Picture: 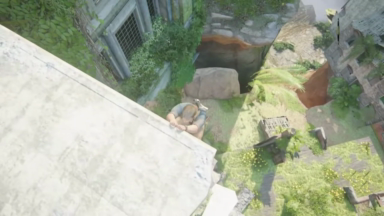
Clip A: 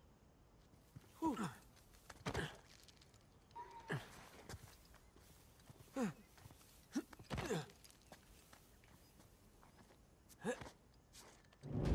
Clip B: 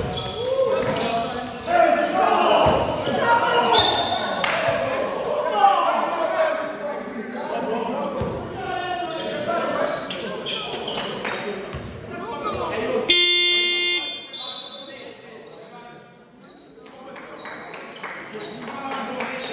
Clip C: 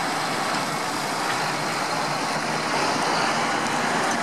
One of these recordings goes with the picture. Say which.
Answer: A